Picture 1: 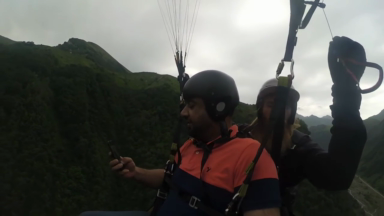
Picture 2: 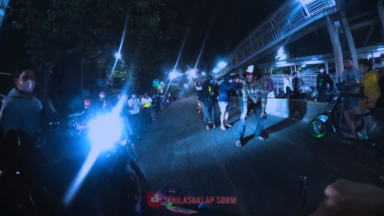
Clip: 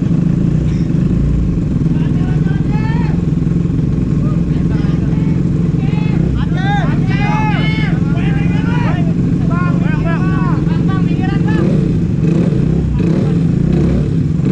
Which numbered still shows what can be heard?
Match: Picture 2